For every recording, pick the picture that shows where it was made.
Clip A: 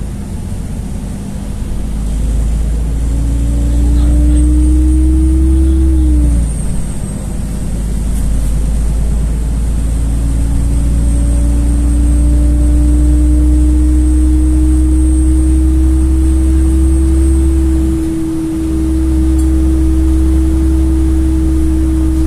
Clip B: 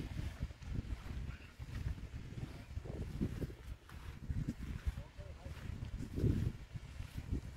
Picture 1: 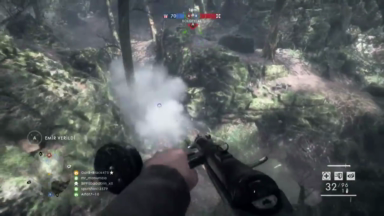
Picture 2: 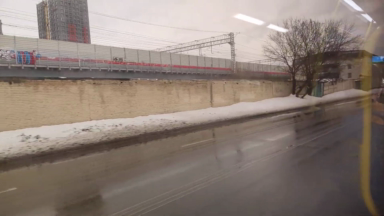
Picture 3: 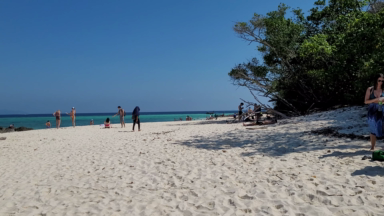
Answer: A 2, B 3